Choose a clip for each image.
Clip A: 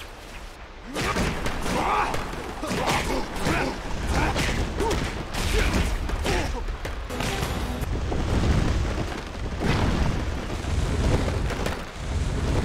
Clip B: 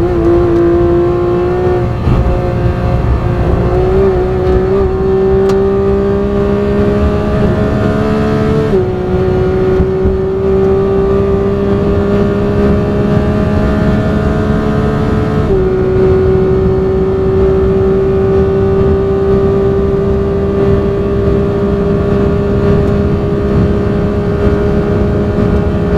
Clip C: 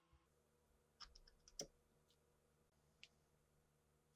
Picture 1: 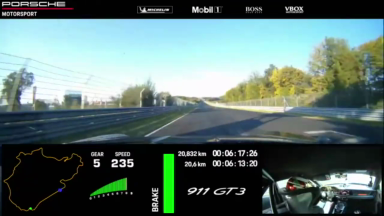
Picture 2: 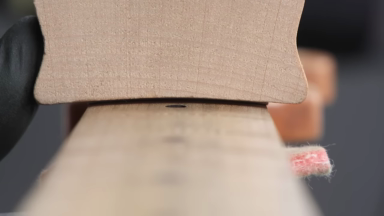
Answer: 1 B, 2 C